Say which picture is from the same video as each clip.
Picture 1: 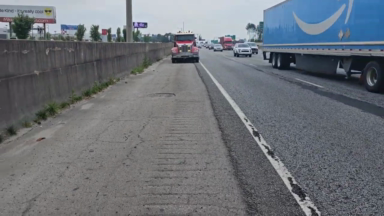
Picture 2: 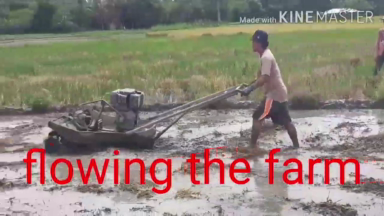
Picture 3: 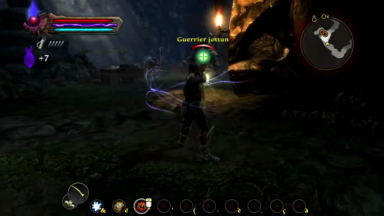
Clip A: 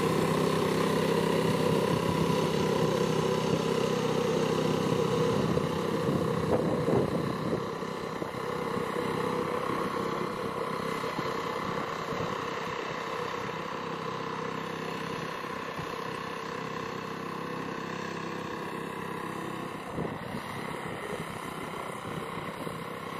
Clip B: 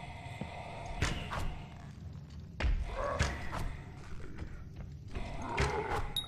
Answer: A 2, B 3